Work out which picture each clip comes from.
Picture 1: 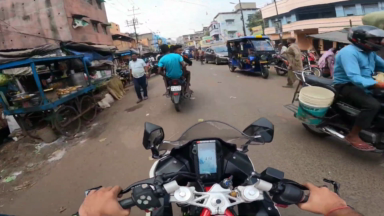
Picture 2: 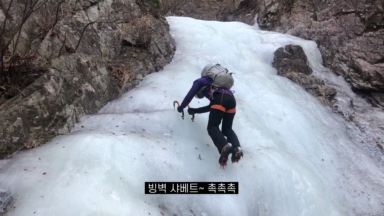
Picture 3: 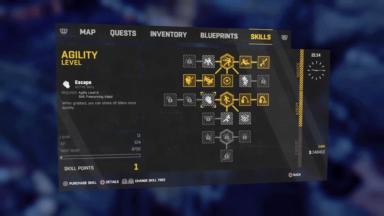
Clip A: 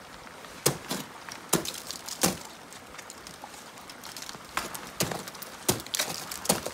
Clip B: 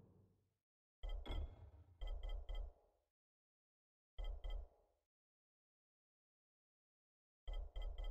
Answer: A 2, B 3